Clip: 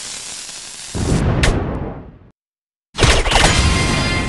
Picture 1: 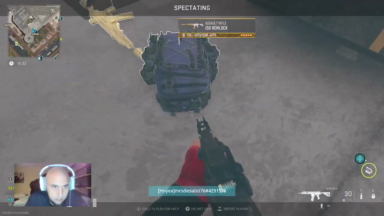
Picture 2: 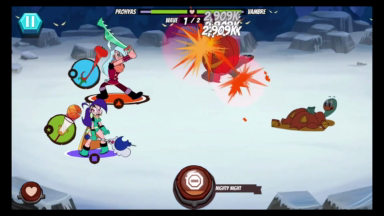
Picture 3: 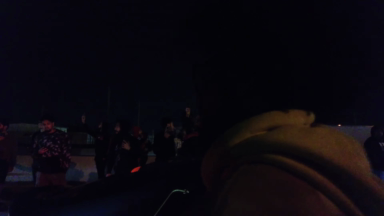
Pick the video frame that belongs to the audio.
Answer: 2